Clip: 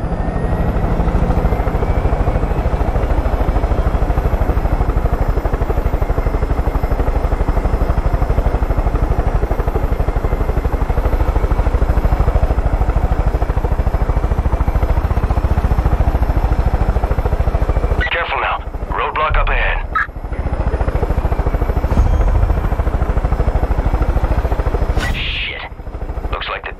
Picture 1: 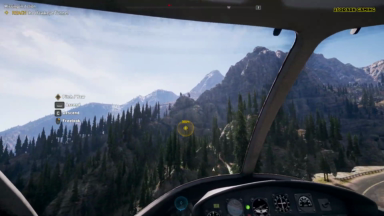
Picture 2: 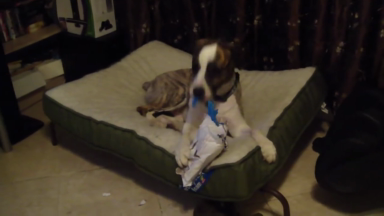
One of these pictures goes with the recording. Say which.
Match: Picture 1